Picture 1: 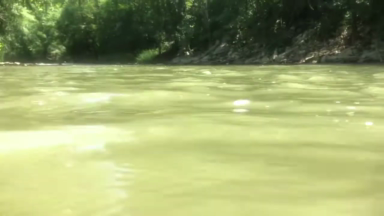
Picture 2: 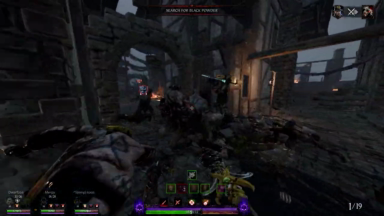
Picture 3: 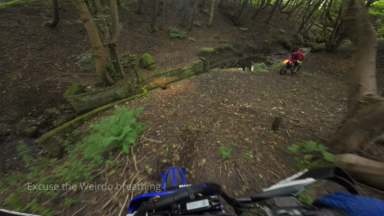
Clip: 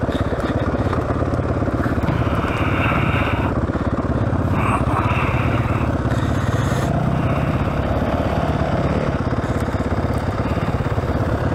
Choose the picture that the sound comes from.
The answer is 3